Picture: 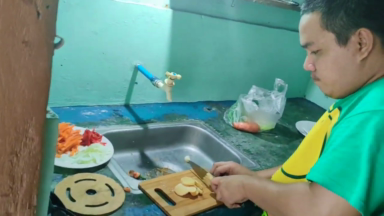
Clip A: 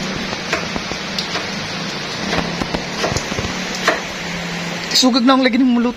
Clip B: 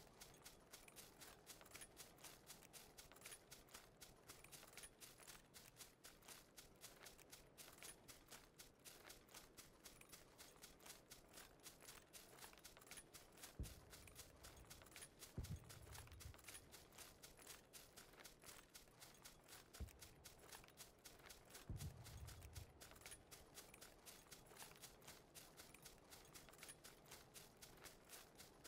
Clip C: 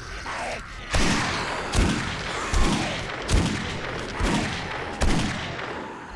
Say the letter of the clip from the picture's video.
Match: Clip A